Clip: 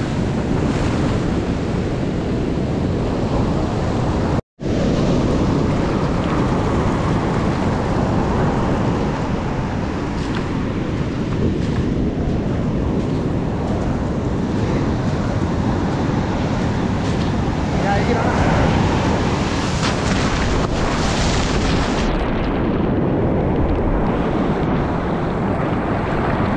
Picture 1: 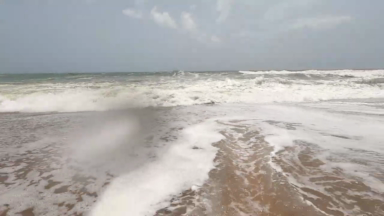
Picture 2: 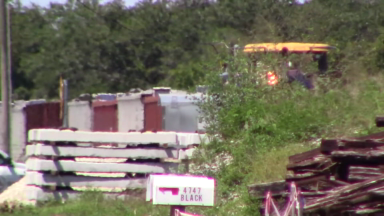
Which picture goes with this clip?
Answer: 1